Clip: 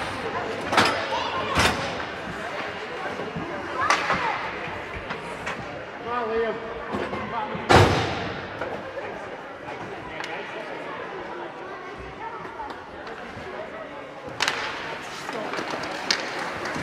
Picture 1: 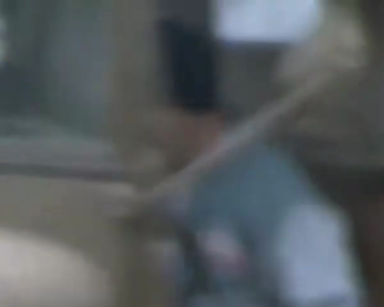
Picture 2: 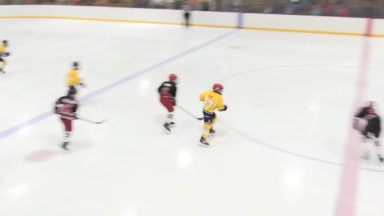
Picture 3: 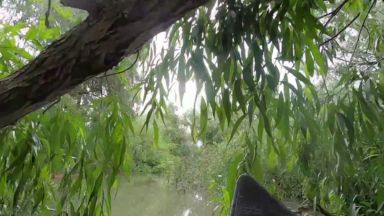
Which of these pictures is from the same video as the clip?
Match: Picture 2